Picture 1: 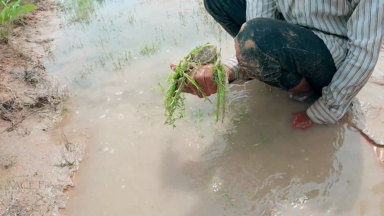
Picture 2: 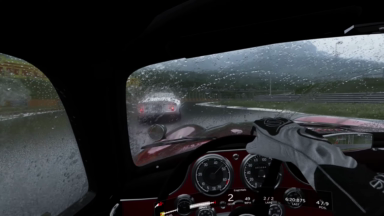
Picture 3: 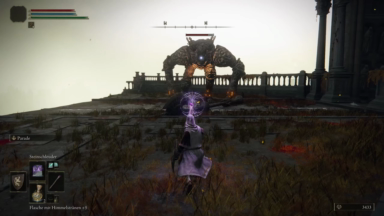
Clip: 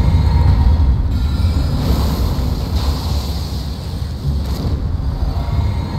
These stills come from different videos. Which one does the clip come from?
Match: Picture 3